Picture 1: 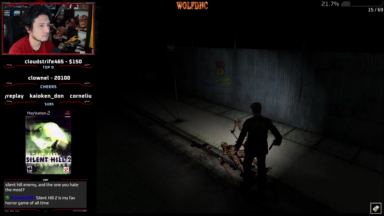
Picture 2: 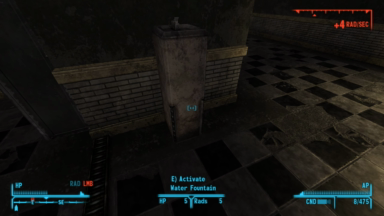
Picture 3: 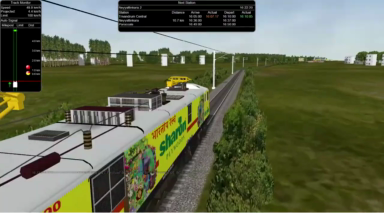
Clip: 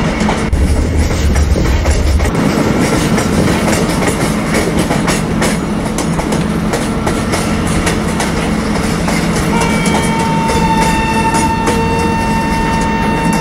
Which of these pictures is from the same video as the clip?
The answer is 3